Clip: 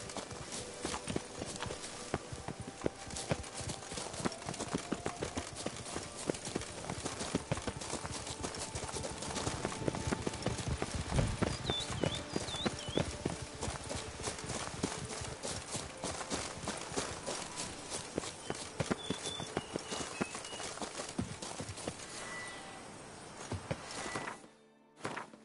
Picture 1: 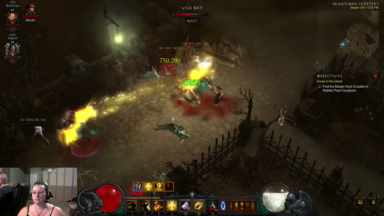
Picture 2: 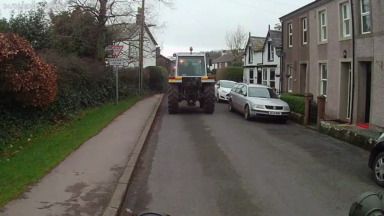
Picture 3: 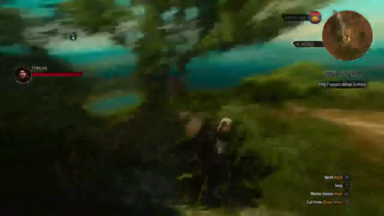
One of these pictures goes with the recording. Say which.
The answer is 3